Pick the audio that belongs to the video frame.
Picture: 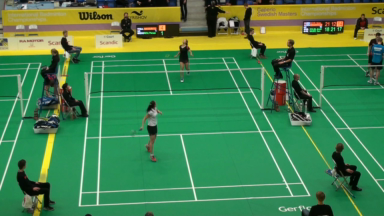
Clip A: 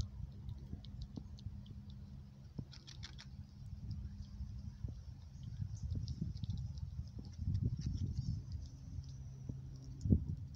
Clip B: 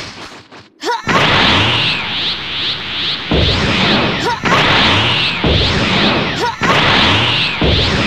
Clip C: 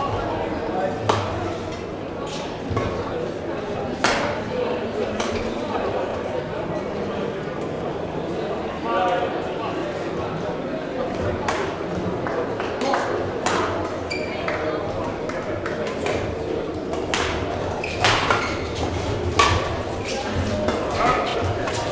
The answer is C